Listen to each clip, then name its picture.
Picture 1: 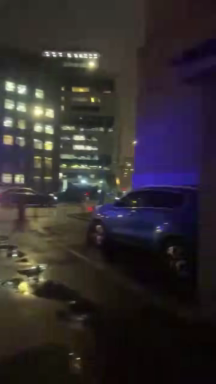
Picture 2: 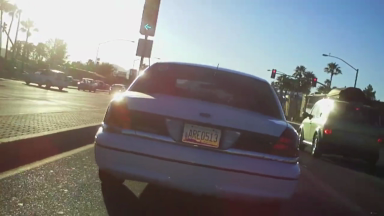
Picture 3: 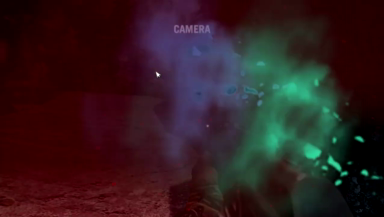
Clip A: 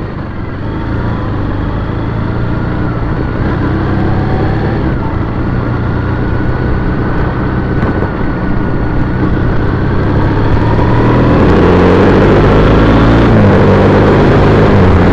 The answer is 2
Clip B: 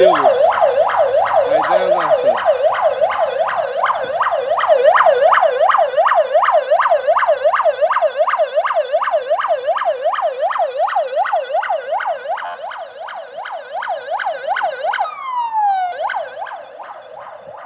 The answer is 1